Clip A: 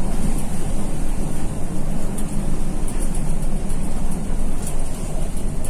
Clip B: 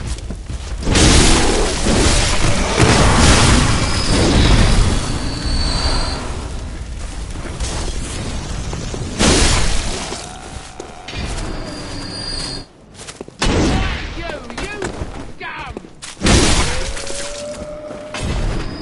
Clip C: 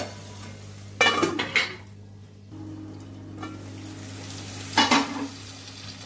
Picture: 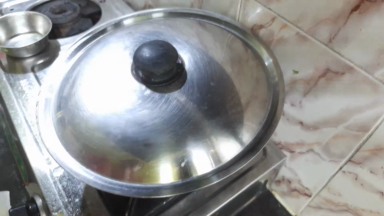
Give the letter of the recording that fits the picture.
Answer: C